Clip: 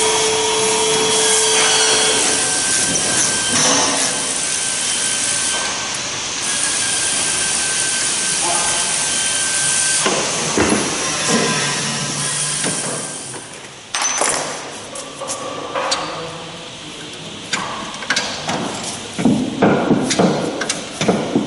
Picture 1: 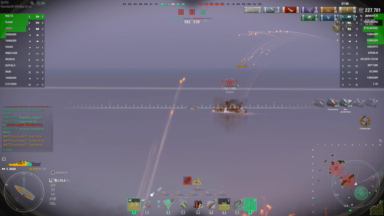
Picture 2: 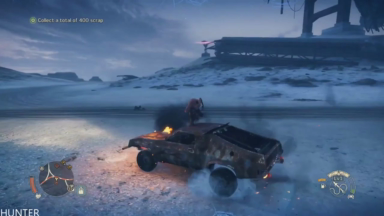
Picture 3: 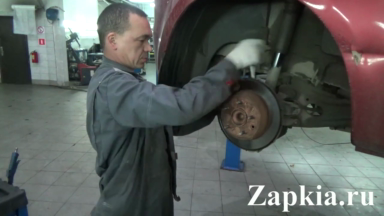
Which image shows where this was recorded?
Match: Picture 3